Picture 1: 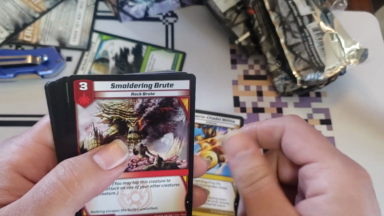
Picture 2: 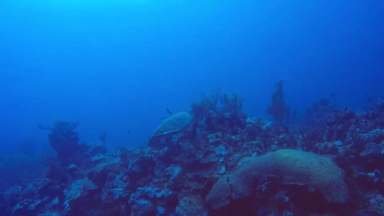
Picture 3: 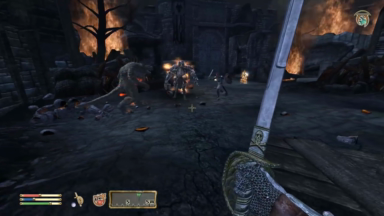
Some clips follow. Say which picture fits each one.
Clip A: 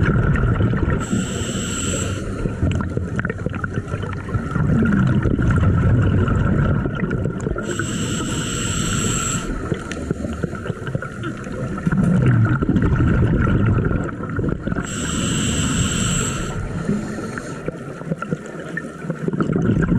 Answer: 2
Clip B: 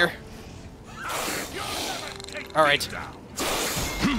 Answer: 3